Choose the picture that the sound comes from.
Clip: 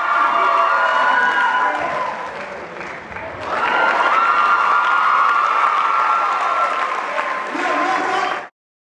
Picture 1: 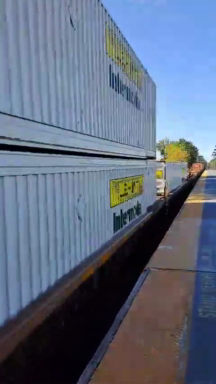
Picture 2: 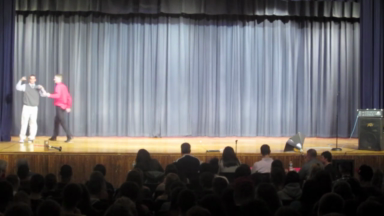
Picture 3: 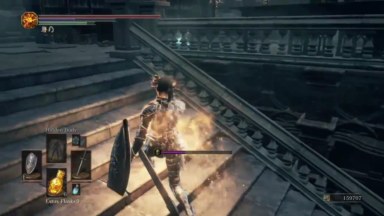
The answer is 2